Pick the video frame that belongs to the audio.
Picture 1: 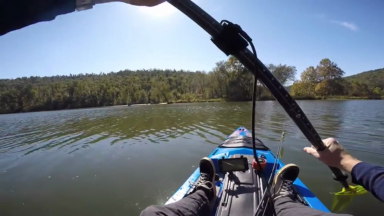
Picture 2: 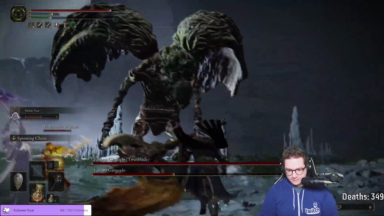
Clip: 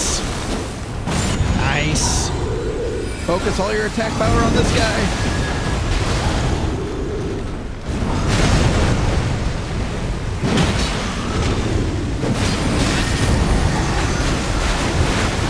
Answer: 2